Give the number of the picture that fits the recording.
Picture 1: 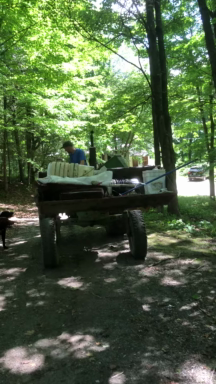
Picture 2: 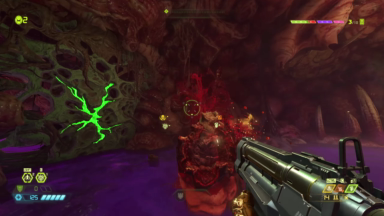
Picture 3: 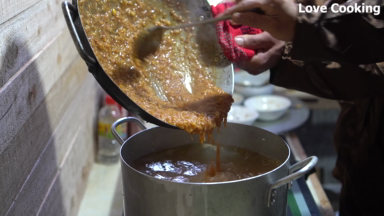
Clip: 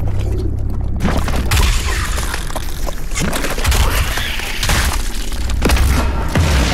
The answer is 2